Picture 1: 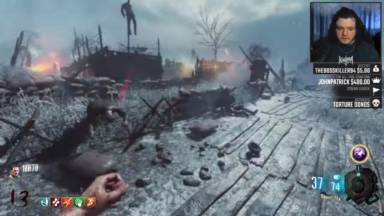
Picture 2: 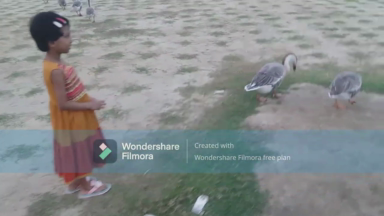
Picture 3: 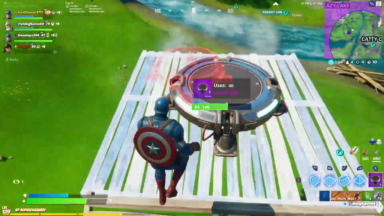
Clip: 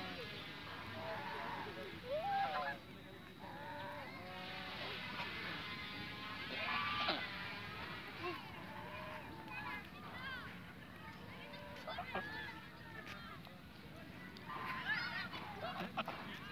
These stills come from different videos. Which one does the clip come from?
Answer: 2